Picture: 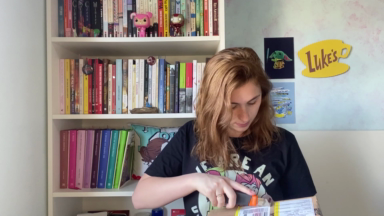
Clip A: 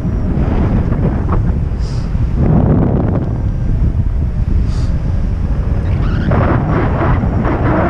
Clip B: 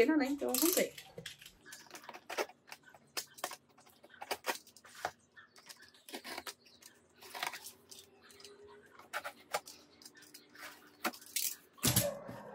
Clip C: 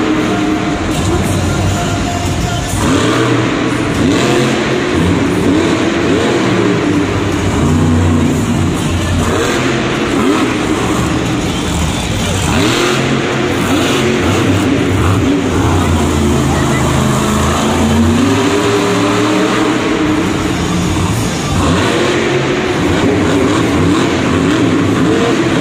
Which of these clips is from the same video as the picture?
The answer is B